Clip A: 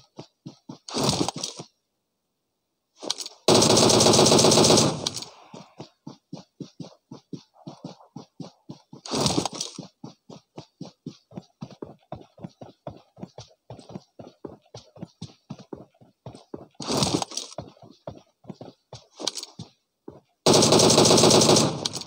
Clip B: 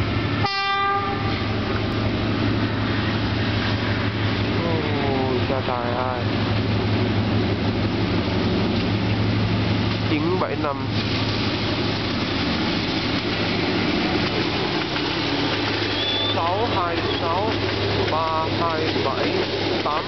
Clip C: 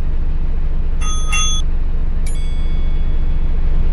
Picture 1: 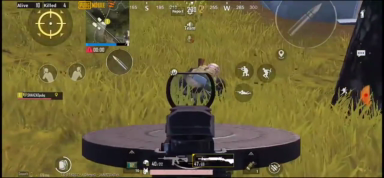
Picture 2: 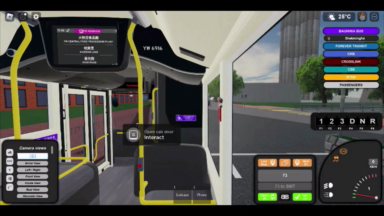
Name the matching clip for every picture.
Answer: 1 A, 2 C